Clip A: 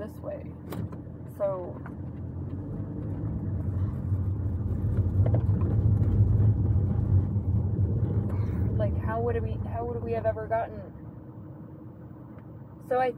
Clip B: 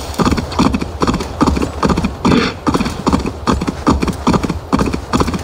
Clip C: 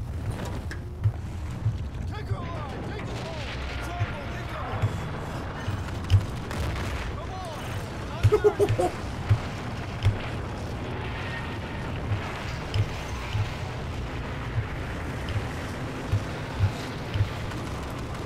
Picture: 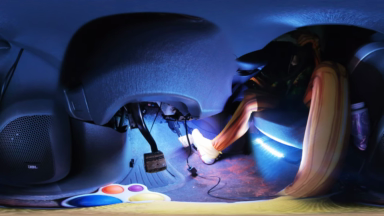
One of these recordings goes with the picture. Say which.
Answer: A